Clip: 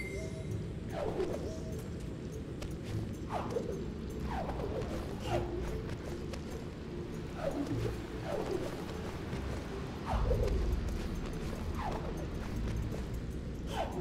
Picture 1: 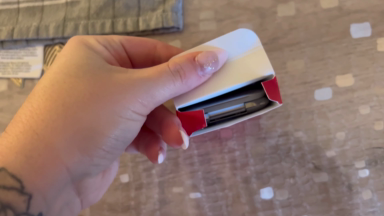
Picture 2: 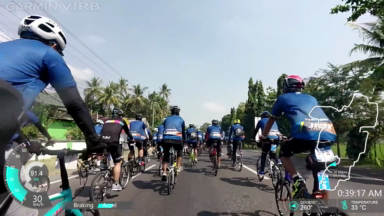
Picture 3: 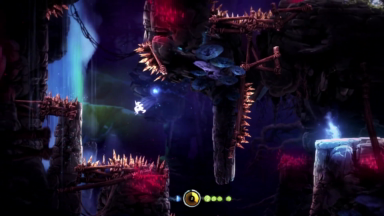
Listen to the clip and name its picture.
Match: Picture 3